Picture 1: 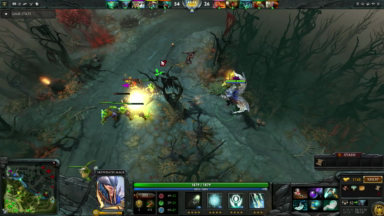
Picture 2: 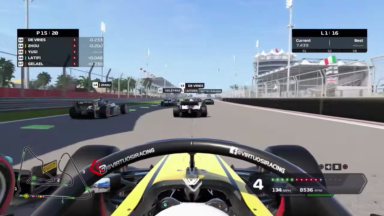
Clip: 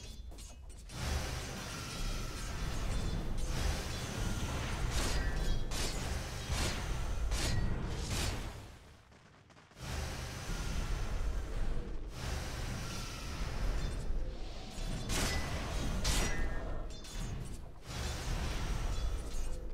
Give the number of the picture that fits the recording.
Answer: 1